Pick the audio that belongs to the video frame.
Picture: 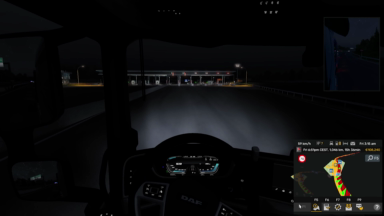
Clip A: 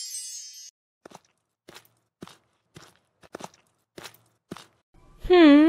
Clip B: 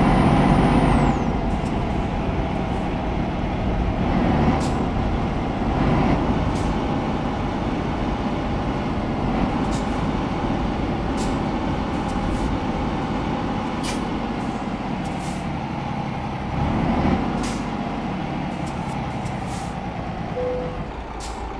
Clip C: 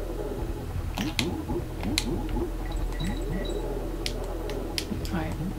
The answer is B